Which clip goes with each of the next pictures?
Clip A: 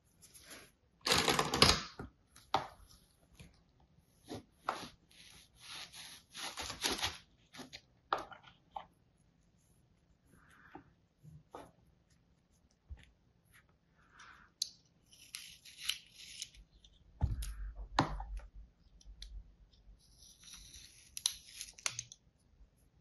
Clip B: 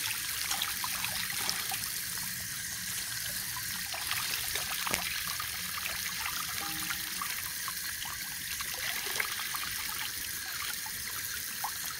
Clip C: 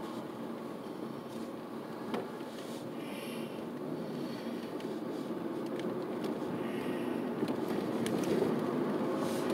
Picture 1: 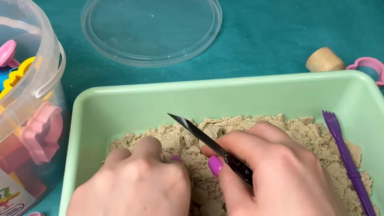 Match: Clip A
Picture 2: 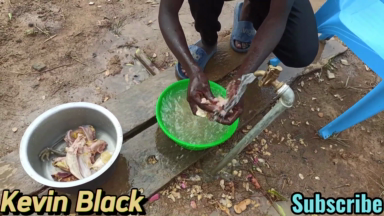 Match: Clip B